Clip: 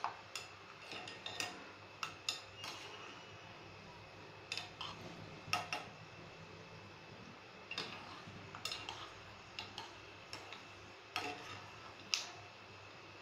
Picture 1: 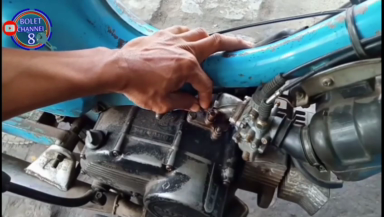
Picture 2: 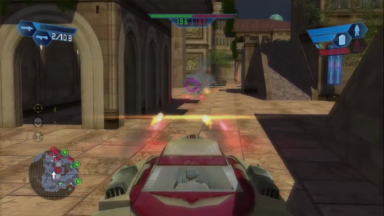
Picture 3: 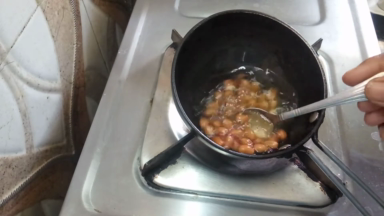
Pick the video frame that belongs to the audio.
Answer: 3